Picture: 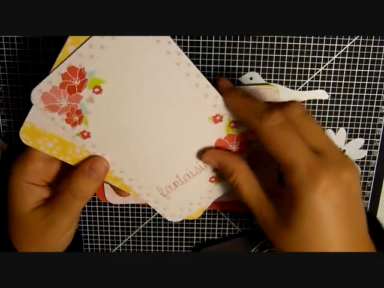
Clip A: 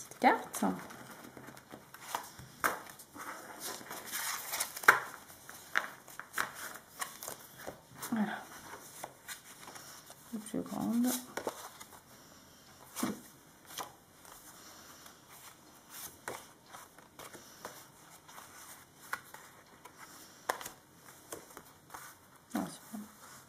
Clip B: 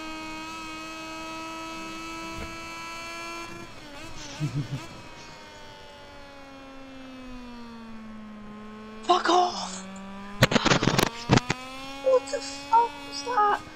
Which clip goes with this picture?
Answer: A